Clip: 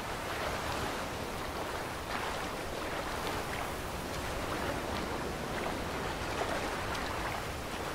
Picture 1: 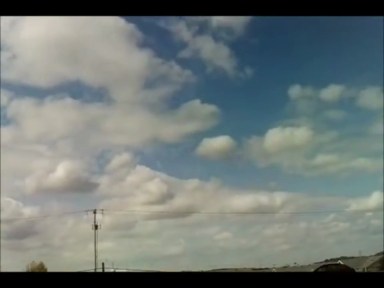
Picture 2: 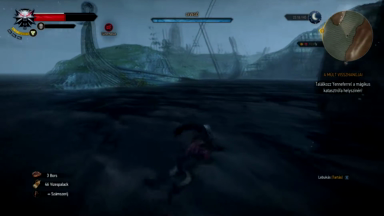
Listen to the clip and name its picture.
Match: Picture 2